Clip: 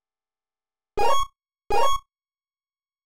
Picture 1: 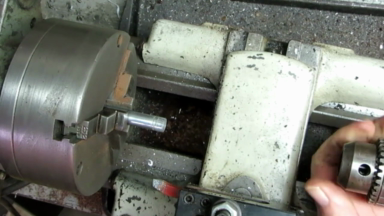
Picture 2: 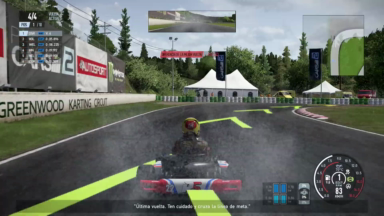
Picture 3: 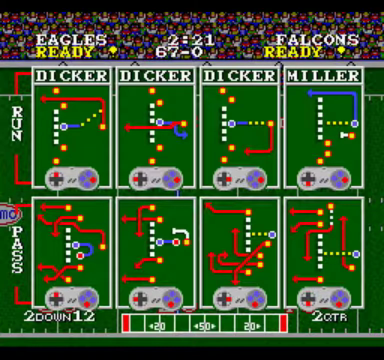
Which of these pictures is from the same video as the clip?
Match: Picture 3